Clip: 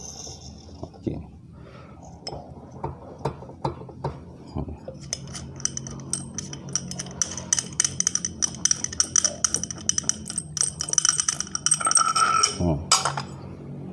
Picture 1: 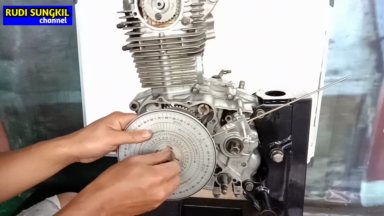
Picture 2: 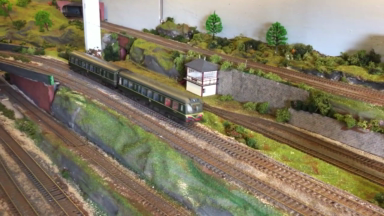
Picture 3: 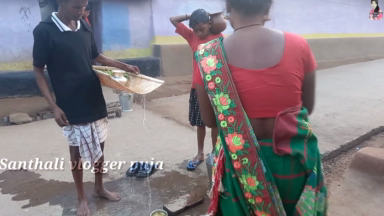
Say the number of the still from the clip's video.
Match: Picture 1